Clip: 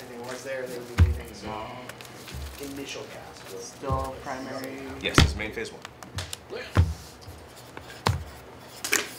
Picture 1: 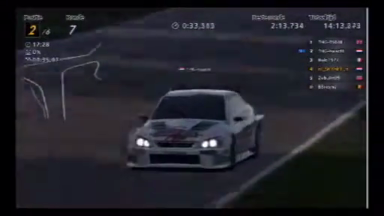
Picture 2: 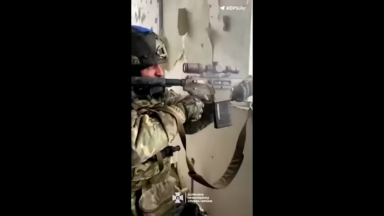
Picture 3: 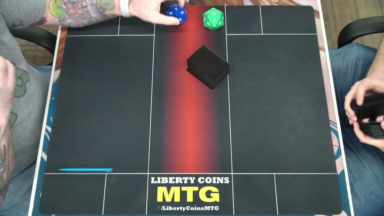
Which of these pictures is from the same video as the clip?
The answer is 3